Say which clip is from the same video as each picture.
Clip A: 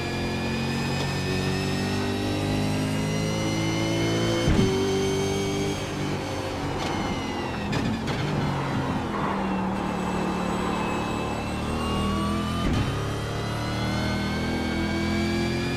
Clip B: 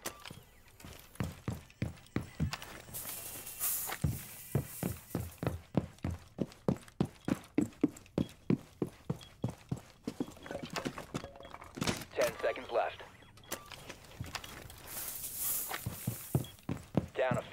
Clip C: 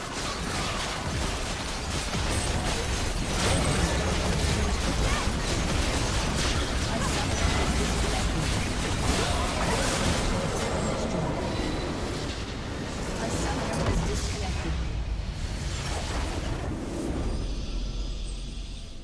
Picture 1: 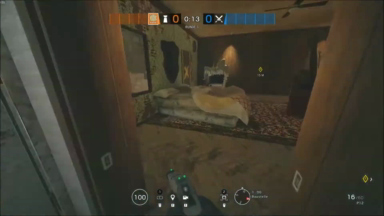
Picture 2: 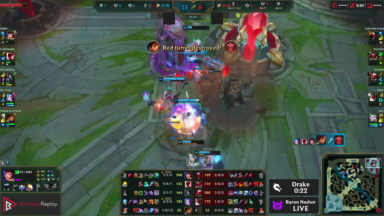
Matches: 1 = B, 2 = C